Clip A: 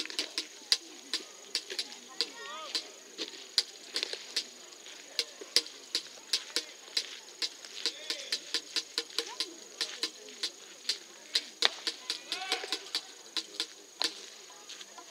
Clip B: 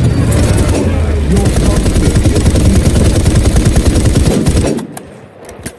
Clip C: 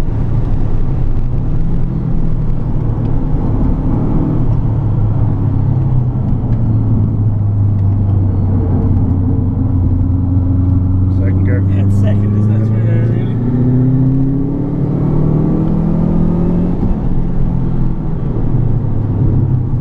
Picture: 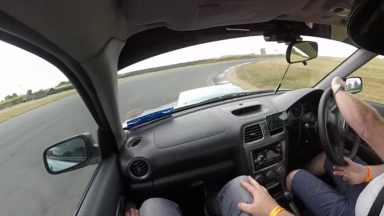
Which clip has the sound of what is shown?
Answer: C